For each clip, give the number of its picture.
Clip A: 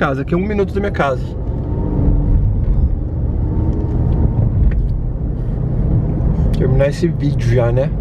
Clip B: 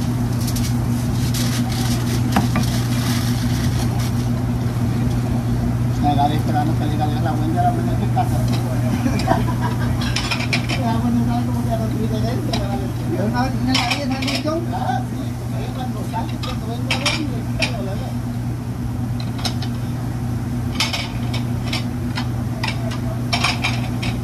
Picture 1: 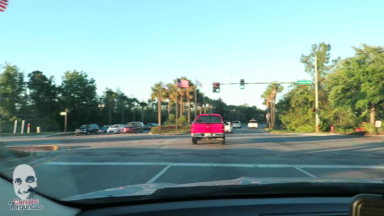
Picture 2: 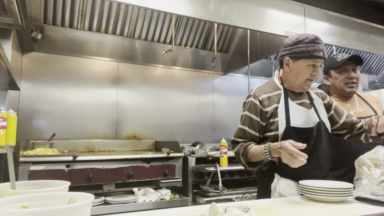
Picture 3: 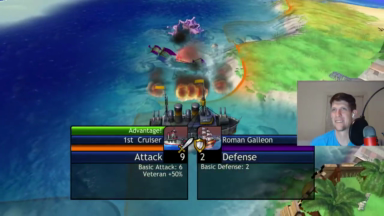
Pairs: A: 1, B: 2